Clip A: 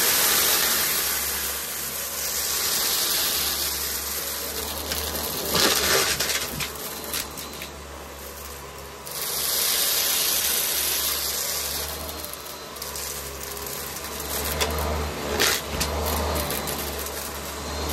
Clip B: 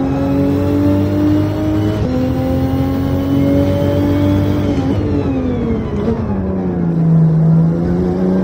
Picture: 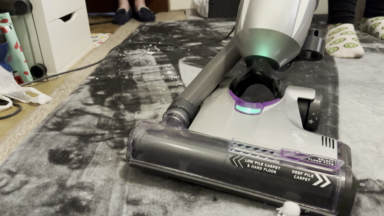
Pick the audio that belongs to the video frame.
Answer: A